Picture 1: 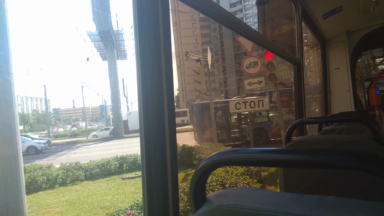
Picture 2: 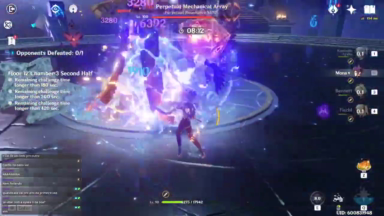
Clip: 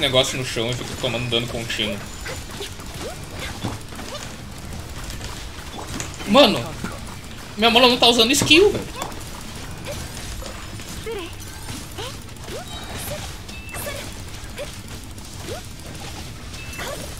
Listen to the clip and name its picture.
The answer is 2